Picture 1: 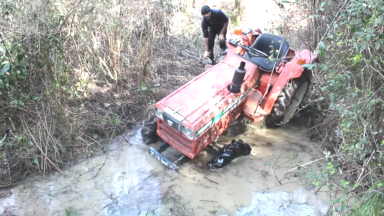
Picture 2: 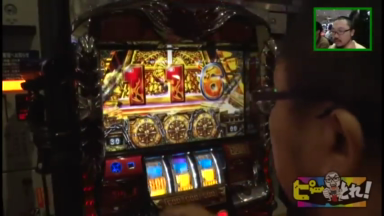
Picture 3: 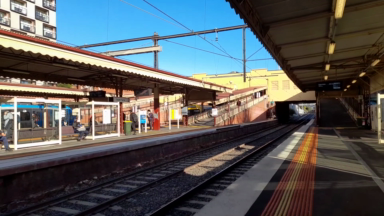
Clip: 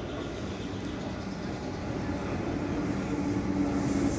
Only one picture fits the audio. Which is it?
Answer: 3